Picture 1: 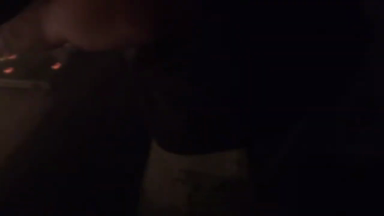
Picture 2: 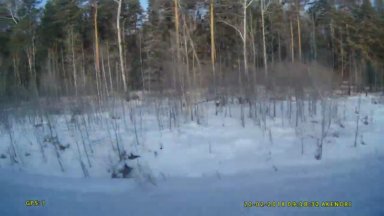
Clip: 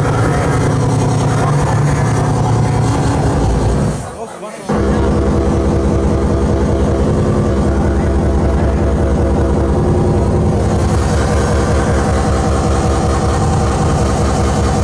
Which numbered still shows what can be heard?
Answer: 1